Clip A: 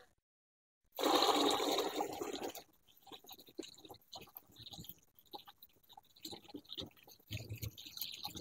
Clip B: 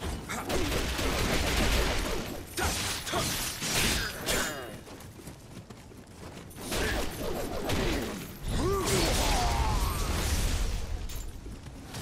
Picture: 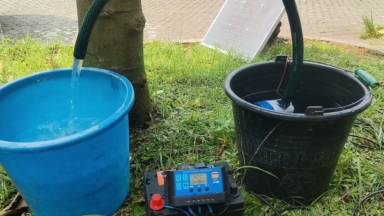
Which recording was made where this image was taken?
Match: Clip A